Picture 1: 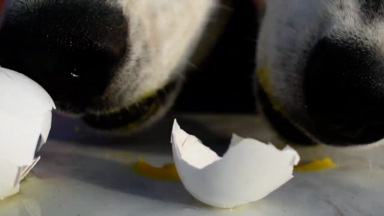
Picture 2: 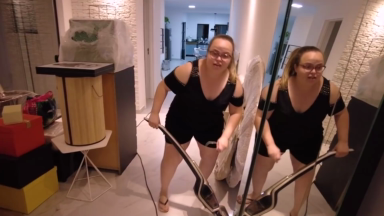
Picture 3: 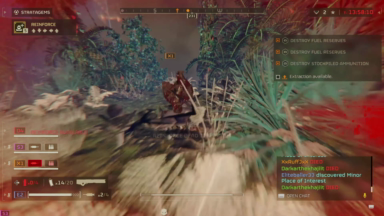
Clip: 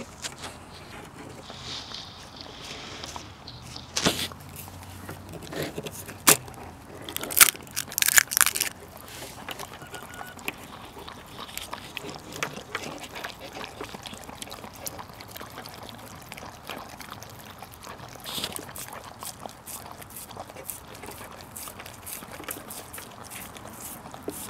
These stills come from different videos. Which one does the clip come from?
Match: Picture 1